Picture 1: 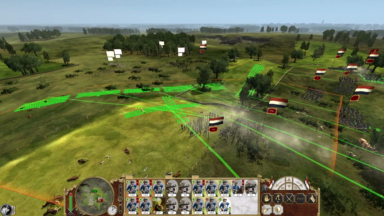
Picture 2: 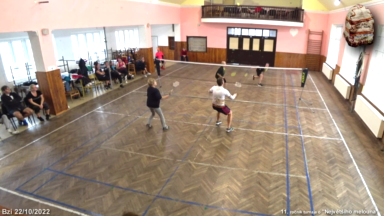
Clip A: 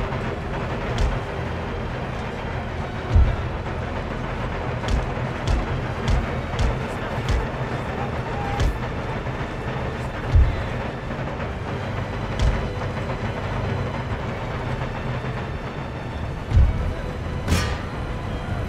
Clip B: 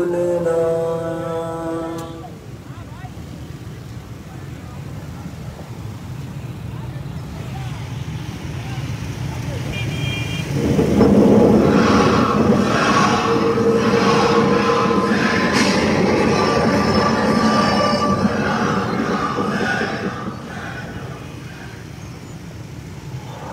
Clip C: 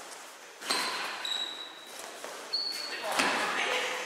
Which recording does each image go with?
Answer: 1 A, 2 C